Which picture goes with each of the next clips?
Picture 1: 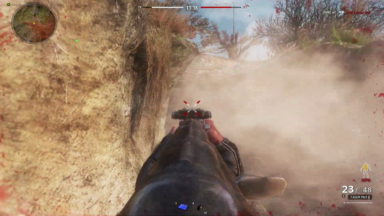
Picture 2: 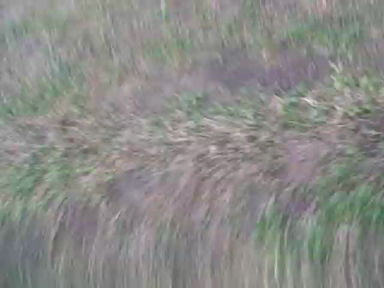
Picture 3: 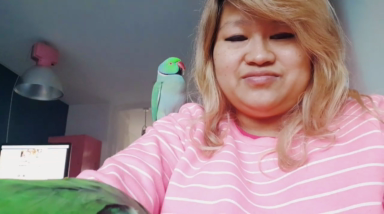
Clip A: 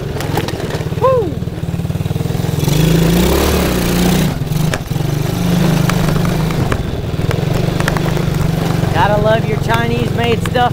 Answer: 2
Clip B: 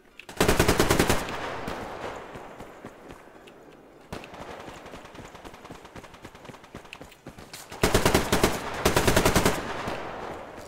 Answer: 1